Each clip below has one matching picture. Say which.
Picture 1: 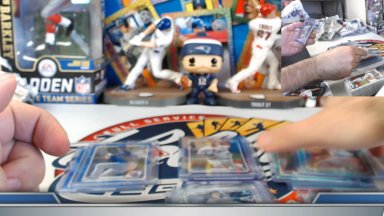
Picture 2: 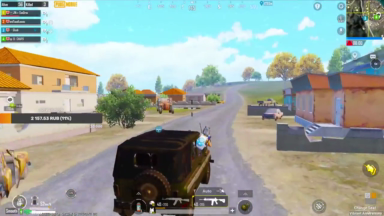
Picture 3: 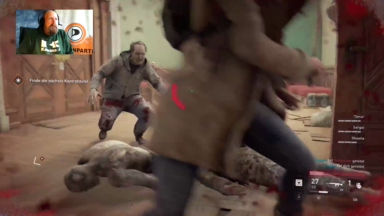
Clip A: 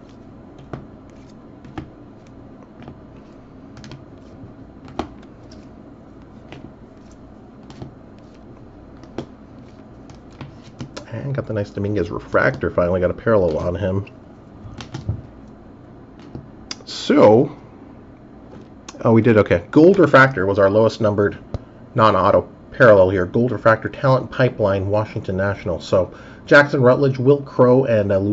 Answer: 1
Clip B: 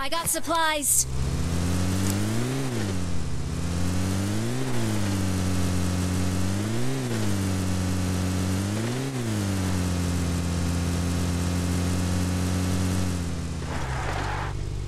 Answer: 2